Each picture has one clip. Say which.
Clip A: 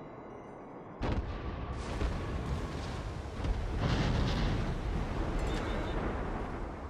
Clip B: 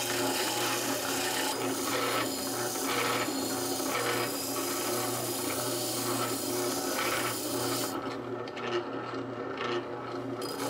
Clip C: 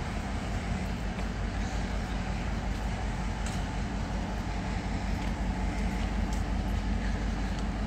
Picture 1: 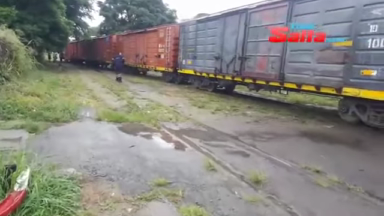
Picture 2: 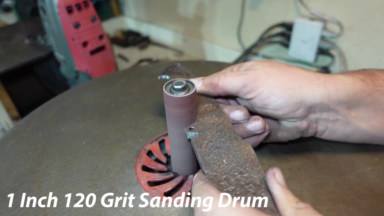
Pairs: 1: C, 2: B